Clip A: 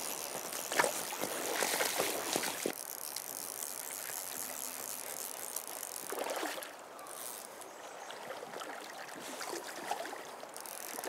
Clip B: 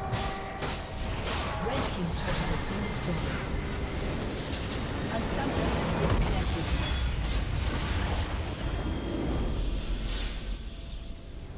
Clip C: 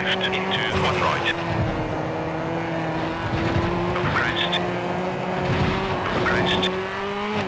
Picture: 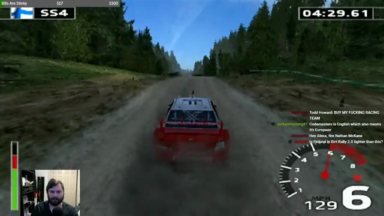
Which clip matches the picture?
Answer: C